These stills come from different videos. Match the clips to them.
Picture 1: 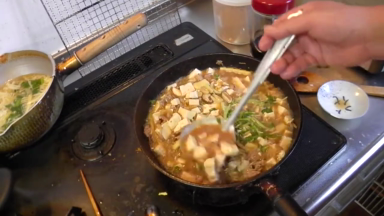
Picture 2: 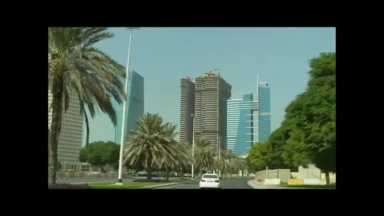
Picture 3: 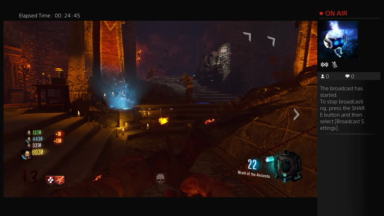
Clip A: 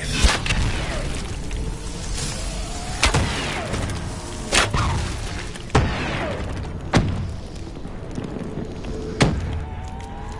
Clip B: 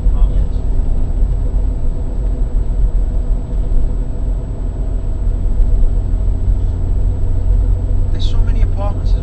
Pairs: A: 3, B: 2